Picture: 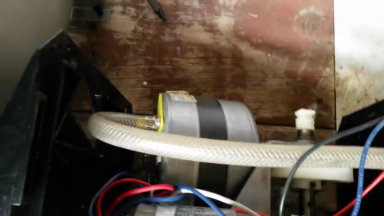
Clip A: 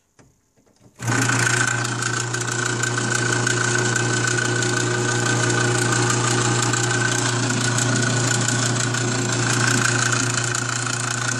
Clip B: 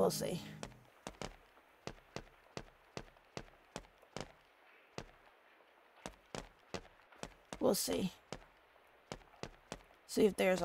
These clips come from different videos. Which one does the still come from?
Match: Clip A